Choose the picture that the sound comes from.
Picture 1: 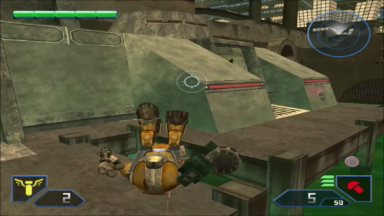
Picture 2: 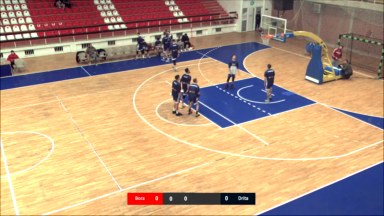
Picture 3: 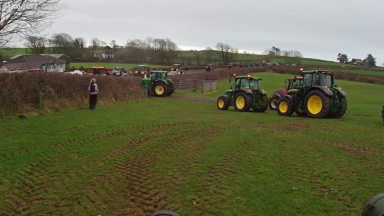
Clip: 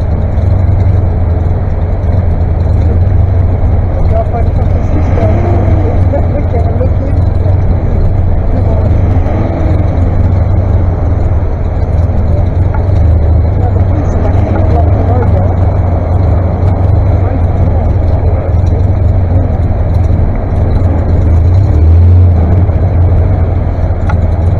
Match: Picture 3